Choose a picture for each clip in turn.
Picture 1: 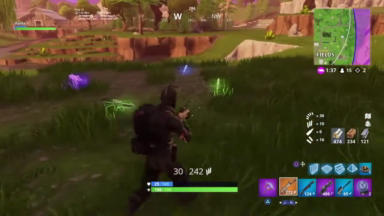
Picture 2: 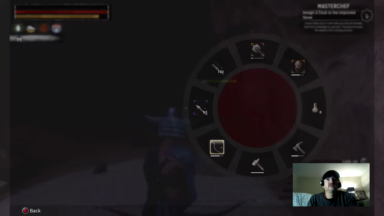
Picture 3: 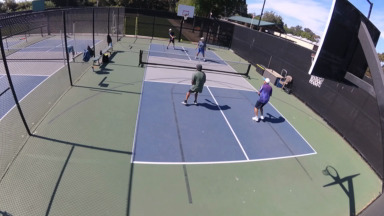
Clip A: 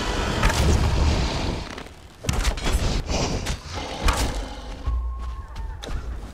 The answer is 2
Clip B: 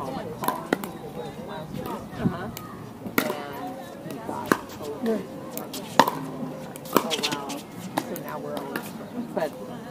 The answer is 3